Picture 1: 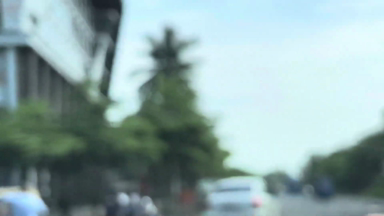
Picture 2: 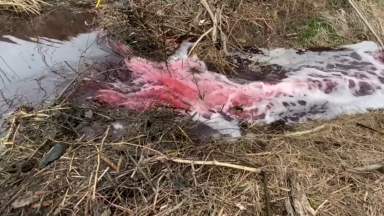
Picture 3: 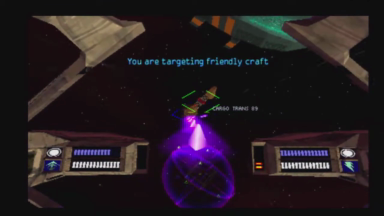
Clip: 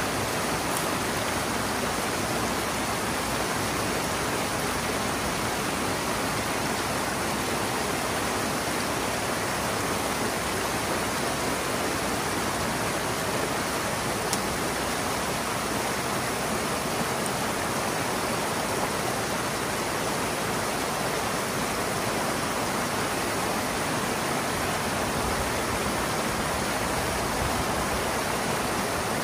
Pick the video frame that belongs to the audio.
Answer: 2